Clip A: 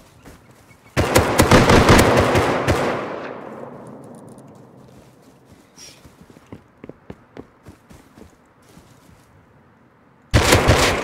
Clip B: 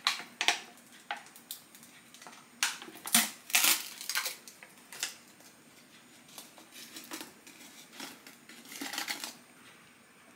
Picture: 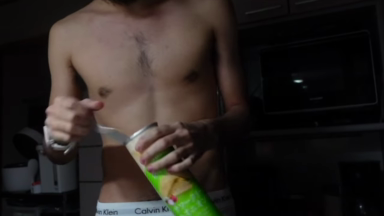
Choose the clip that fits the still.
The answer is B